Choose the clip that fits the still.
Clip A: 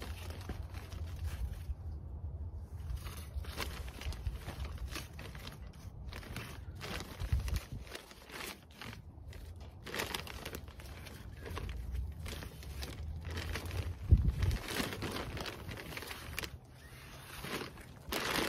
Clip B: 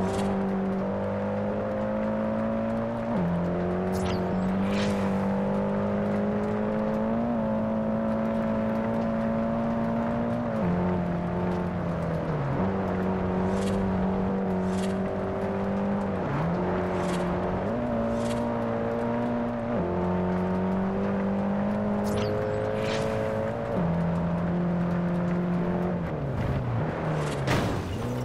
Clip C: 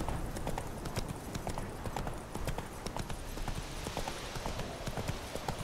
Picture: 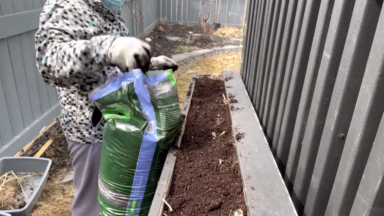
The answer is A